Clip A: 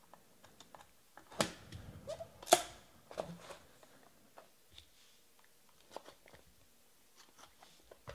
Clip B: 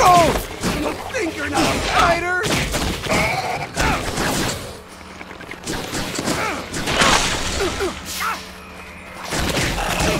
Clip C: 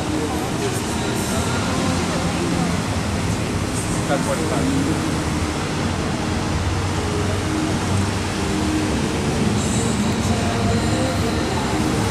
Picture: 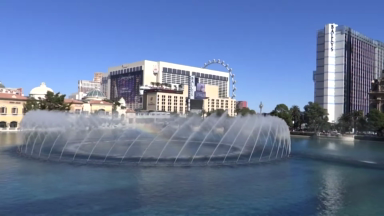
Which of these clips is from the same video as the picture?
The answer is C